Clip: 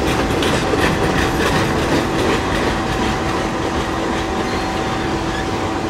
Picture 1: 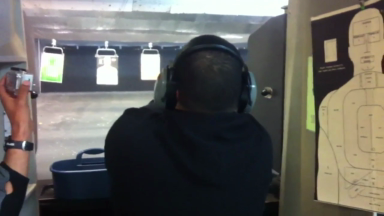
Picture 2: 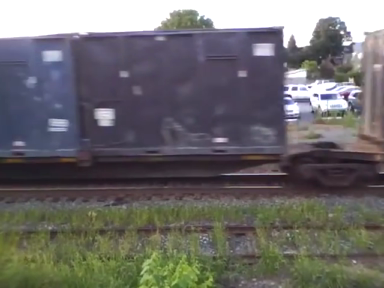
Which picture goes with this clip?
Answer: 2